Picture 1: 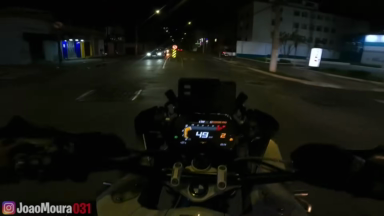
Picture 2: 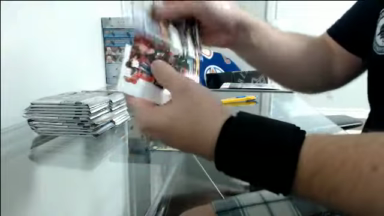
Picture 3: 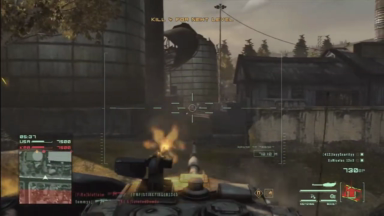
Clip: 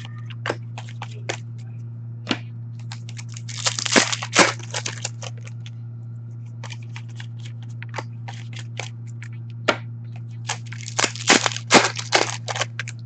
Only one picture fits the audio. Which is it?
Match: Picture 2